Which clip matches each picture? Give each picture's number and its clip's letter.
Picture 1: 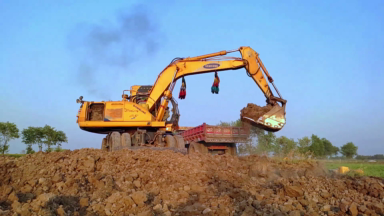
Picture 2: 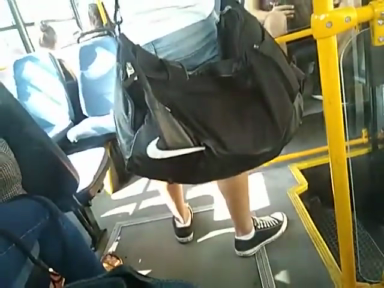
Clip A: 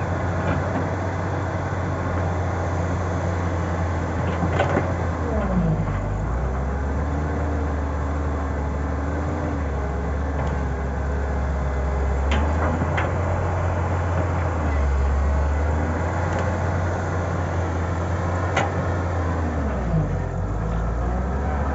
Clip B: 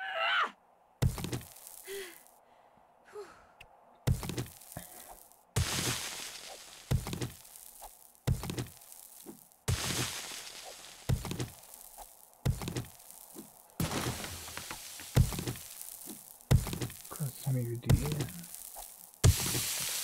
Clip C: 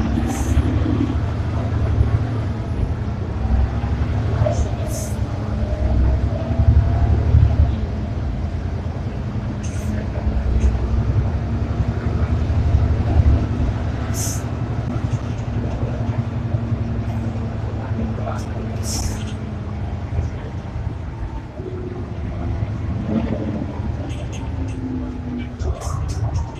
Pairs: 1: A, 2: C